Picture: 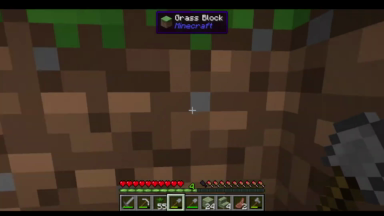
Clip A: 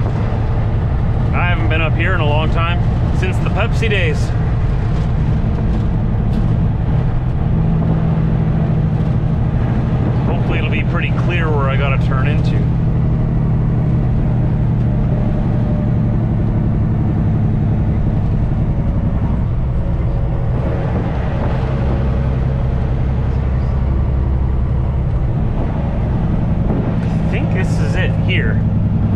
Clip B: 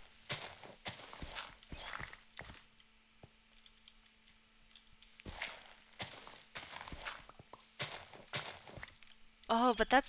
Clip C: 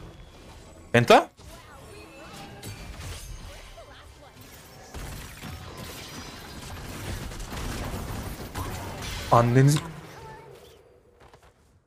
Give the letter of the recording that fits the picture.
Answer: B